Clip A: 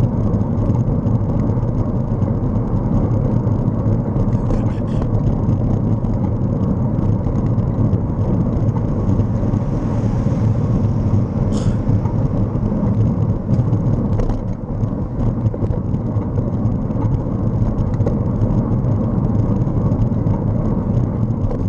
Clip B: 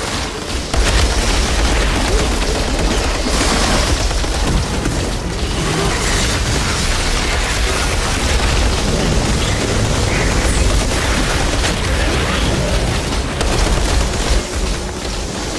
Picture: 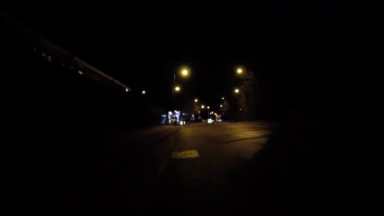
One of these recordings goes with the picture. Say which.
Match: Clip A